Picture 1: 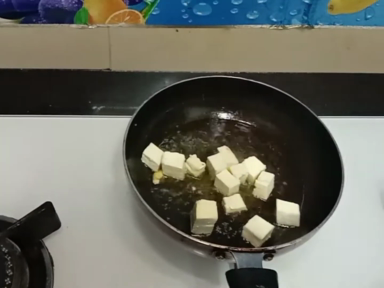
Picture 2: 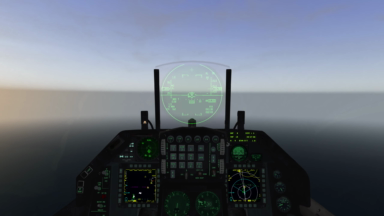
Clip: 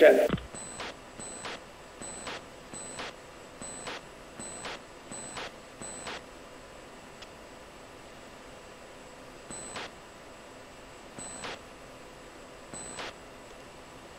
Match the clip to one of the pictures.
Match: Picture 2